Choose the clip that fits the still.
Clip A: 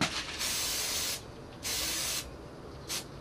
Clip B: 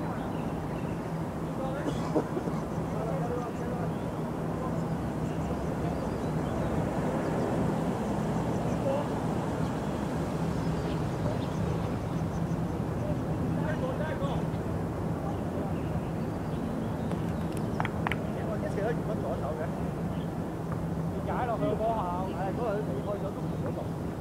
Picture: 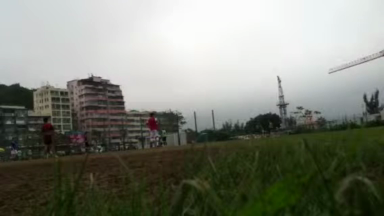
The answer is B